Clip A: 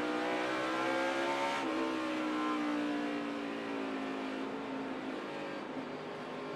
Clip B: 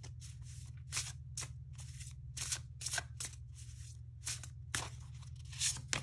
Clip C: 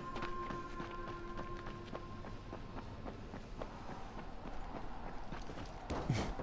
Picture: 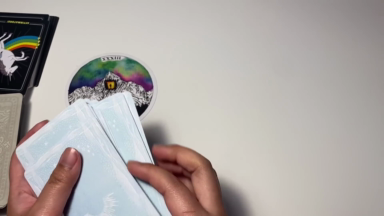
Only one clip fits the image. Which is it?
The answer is B